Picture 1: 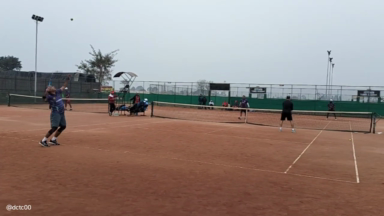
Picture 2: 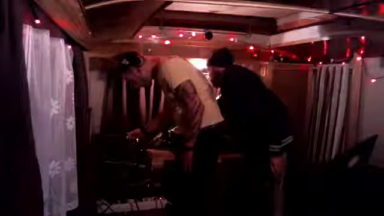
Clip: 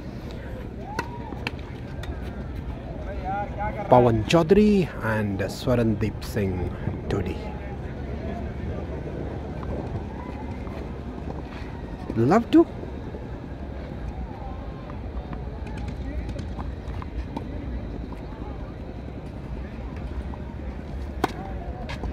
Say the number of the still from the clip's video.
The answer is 1